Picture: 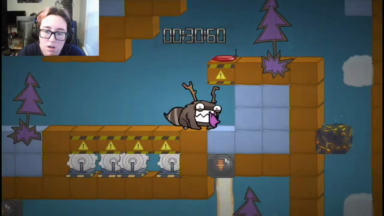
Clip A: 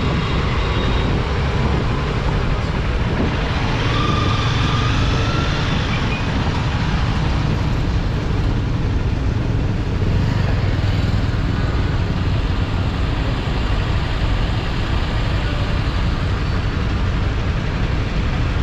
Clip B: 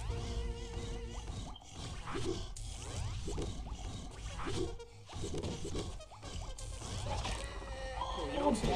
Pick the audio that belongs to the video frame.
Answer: B